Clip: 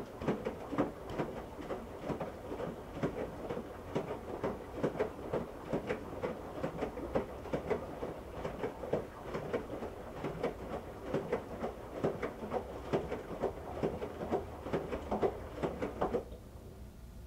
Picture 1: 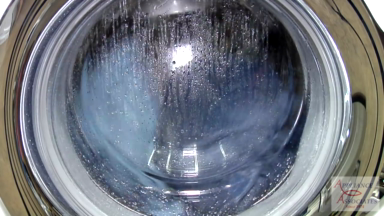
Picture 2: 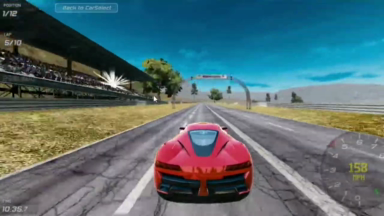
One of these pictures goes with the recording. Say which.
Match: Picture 1